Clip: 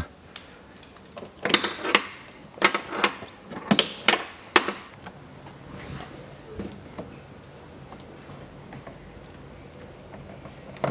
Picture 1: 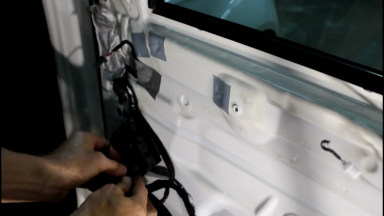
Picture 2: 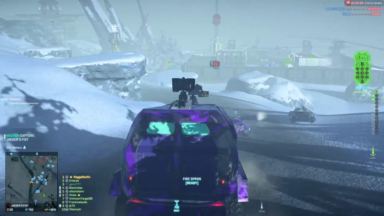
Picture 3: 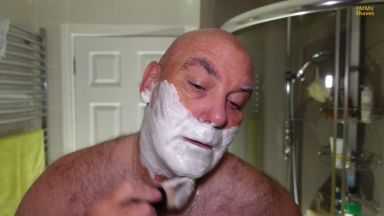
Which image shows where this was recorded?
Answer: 1